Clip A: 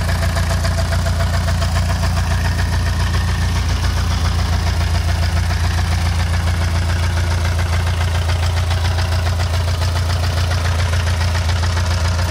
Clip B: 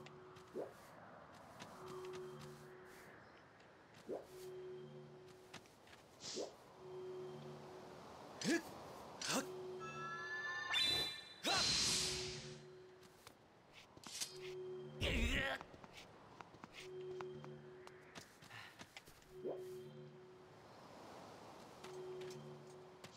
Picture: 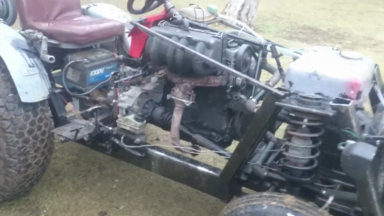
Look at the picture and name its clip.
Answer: A